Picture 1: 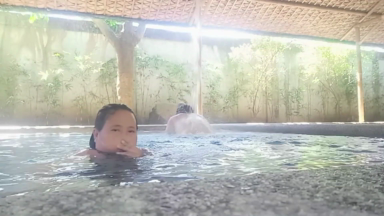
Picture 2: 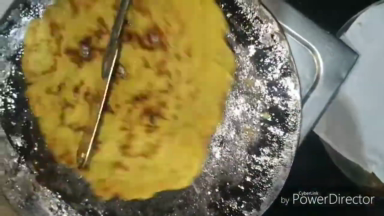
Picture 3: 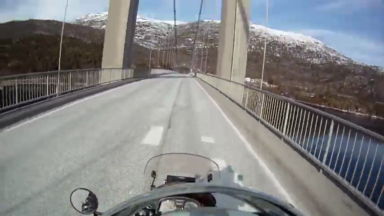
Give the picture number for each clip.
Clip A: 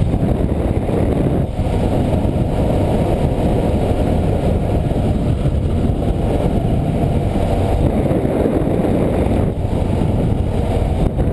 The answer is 3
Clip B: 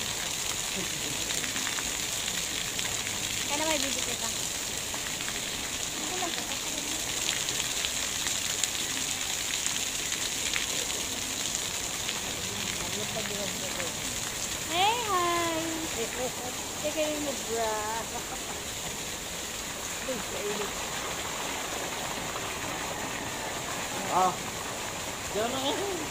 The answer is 1